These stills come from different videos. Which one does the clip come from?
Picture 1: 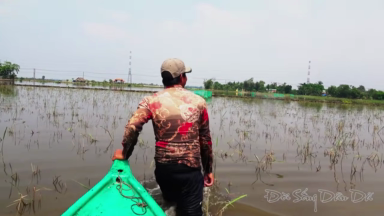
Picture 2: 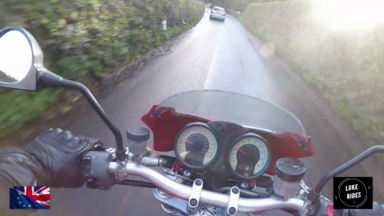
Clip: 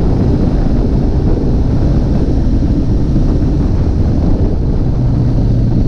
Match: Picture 2